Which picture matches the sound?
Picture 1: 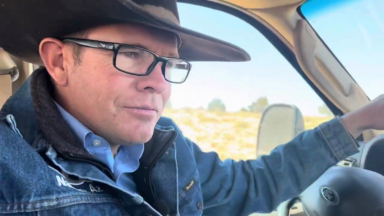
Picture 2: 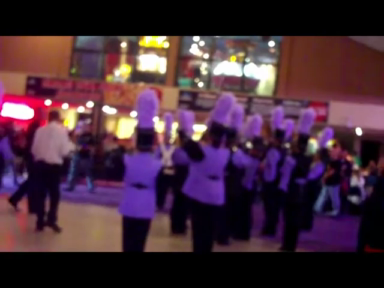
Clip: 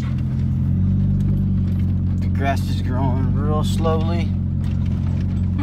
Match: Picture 1